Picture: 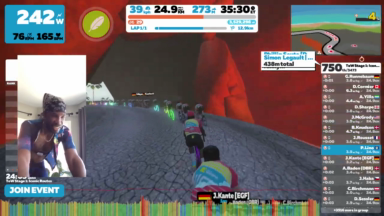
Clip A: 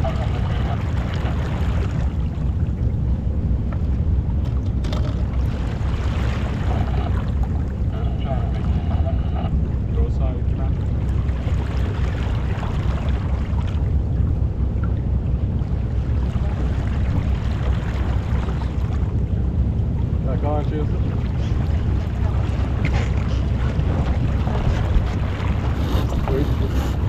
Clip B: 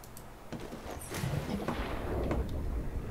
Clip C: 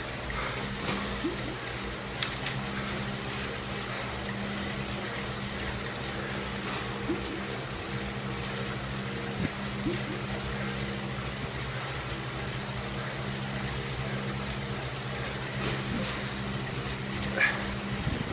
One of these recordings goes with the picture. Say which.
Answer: C